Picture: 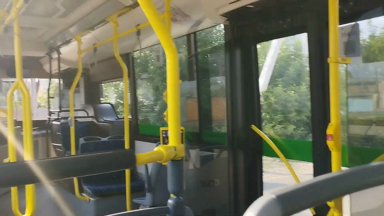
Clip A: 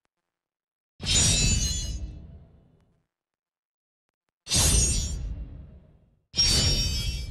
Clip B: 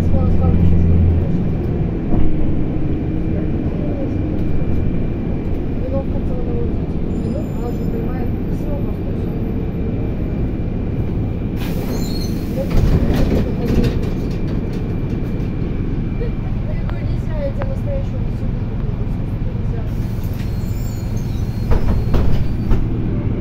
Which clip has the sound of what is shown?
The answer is B